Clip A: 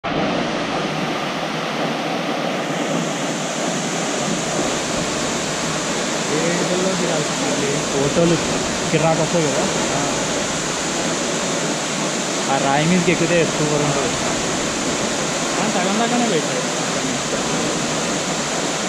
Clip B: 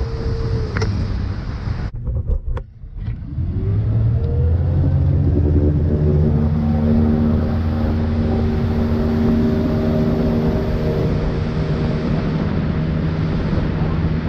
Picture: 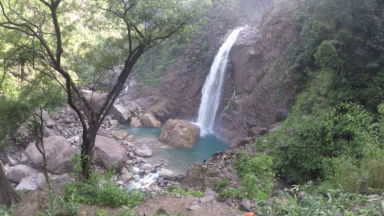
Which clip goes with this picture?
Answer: A